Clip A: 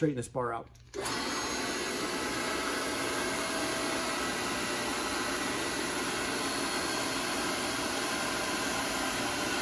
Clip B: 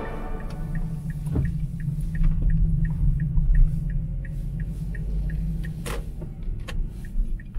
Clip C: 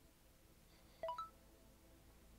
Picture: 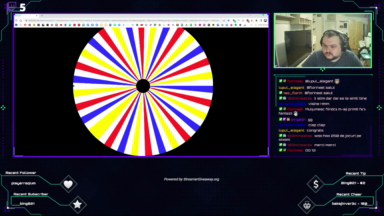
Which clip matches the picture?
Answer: C